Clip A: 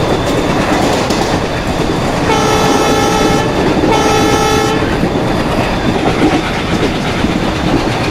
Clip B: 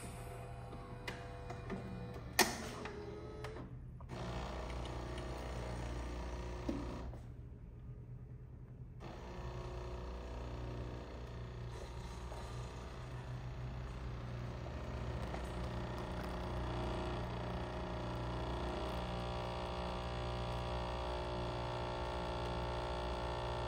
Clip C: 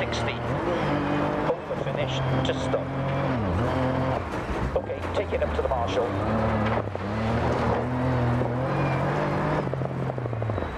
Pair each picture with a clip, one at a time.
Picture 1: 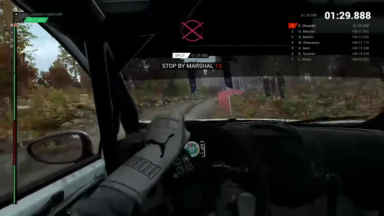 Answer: C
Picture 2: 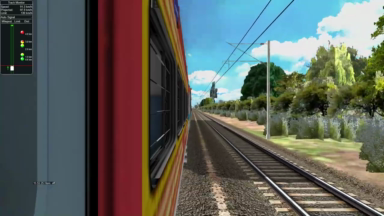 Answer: A